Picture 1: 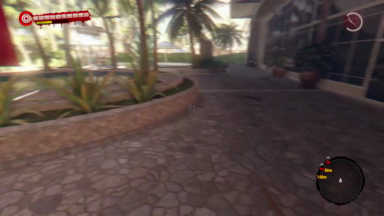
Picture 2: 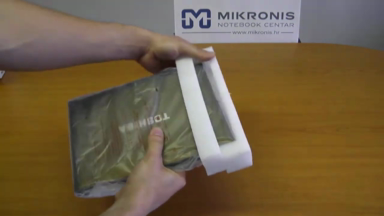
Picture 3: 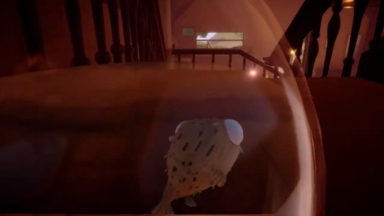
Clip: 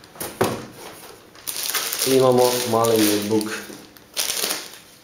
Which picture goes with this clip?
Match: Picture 2